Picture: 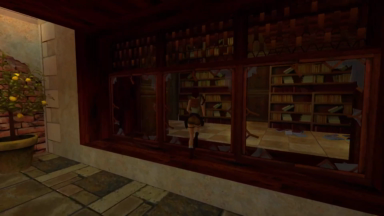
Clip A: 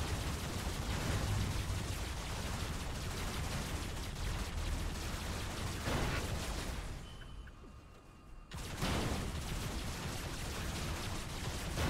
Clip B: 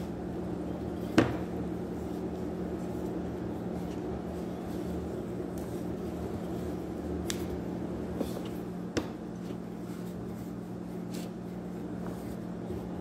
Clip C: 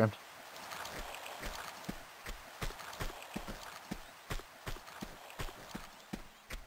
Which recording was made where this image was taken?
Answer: C